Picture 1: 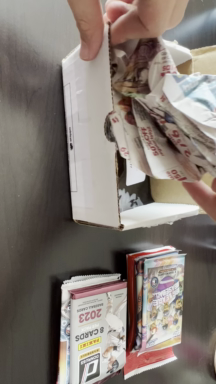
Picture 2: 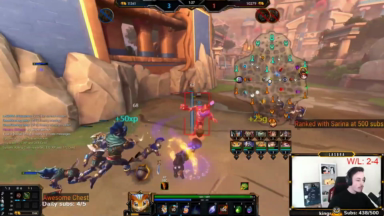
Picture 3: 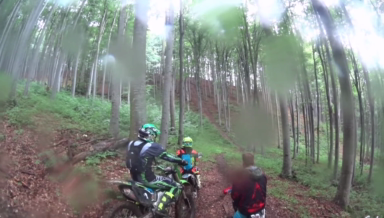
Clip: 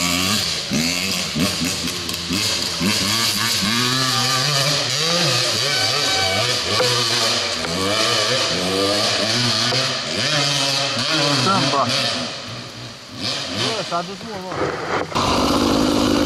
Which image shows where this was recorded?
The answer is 3